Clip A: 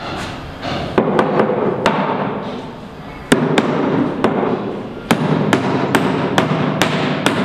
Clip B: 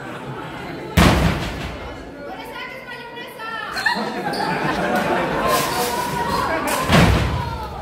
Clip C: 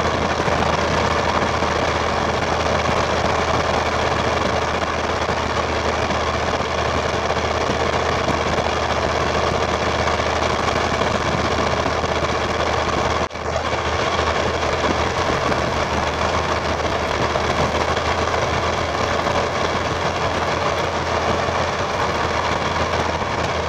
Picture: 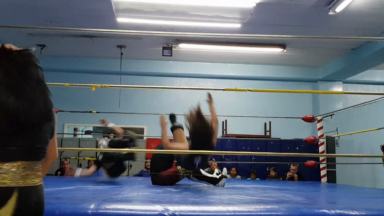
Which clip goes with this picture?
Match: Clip B